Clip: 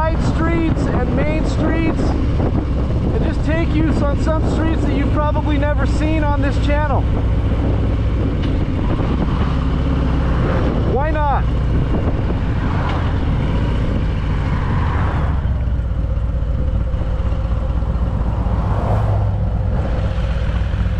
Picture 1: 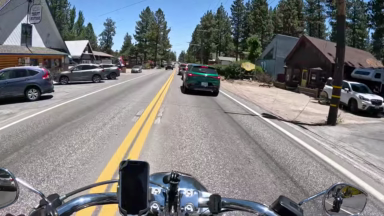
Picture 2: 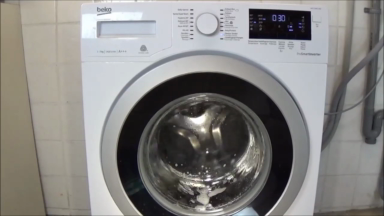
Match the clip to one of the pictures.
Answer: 1